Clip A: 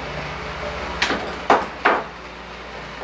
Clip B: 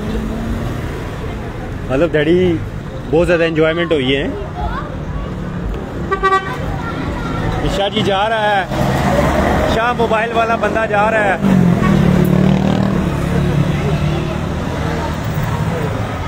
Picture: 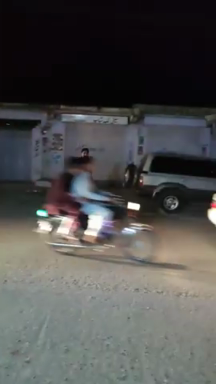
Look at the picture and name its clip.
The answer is B